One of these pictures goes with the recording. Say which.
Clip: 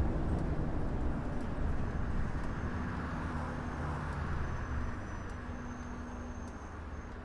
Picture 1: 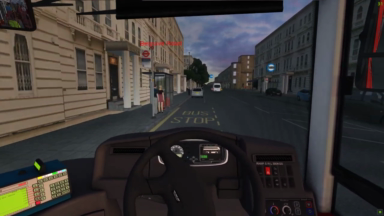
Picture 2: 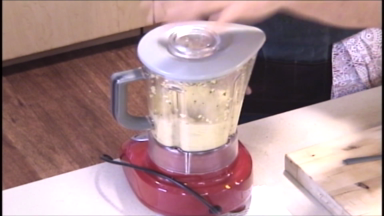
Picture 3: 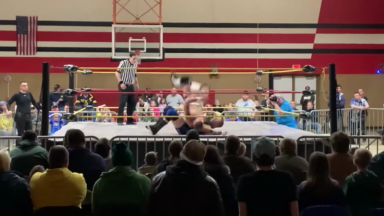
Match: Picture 1